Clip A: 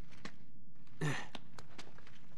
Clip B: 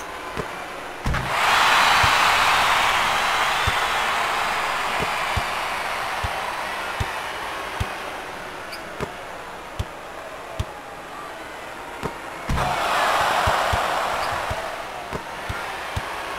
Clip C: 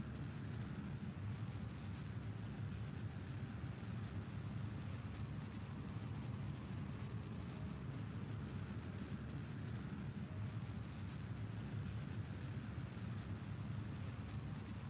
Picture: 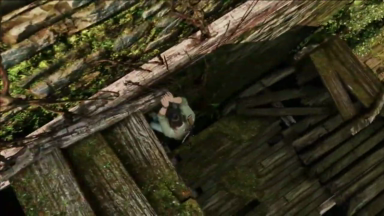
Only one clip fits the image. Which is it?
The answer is A